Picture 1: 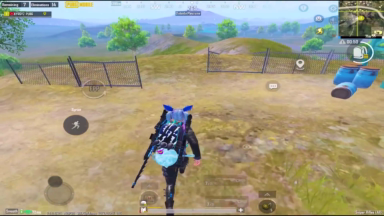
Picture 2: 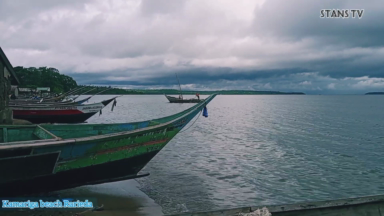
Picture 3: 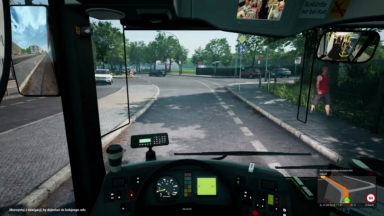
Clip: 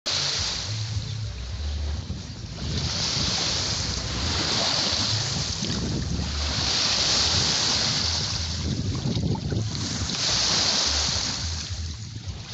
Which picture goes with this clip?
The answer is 2